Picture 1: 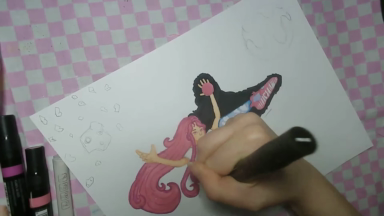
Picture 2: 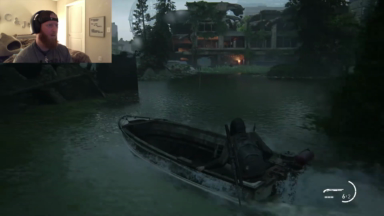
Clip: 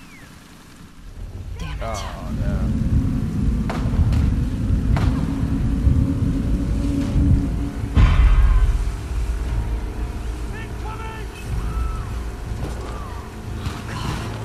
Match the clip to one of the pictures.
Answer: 2